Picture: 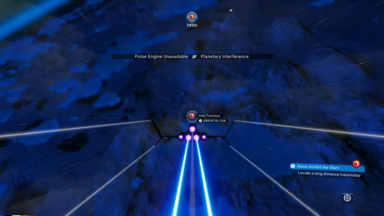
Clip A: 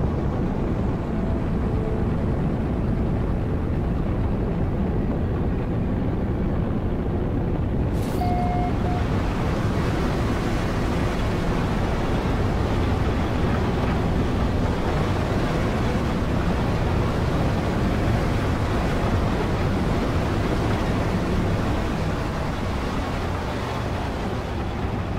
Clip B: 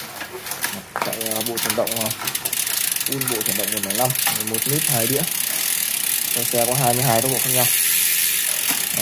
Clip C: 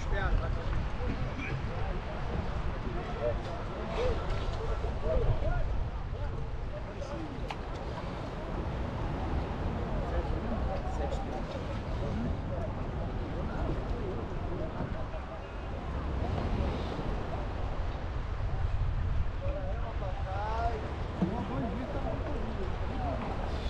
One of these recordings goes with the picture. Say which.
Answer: A